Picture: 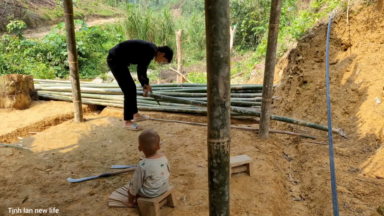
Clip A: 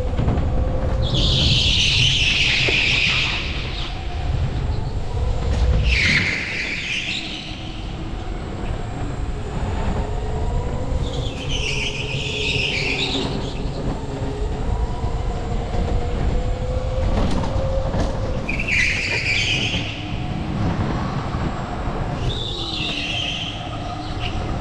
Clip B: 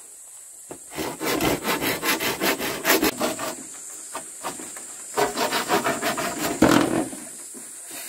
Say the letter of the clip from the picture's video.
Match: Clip B